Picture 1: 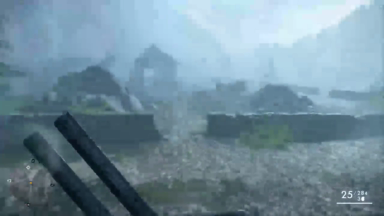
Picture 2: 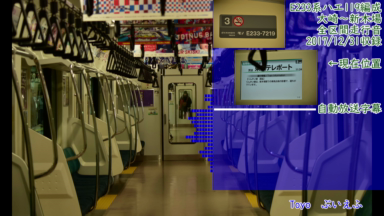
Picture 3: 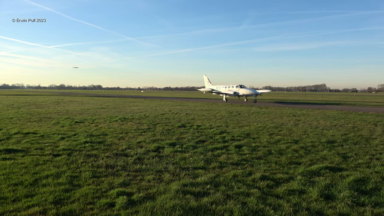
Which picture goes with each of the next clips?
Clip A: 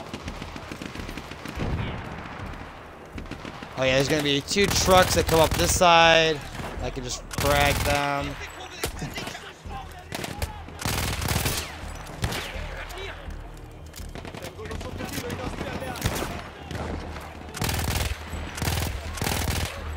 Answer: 1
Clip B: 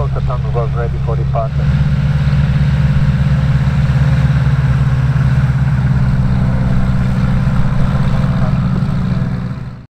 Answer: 3